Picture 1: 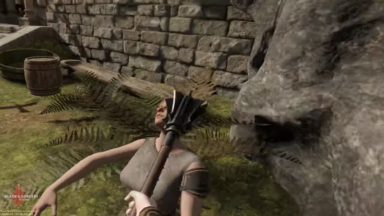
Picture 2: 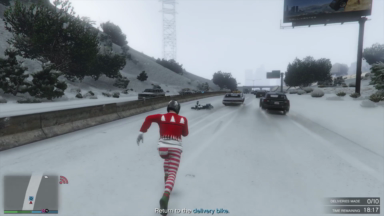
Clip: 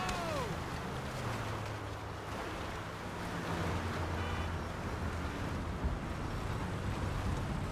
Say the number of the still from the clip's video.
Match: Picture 2